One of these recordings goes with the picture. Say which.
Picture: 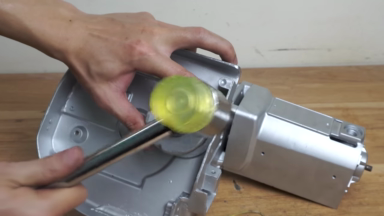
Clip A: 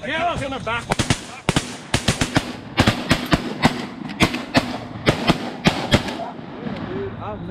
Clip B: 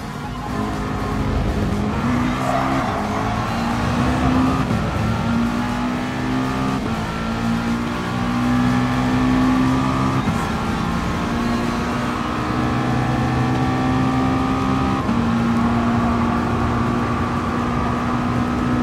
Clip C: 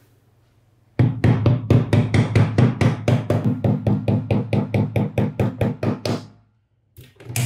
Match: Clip C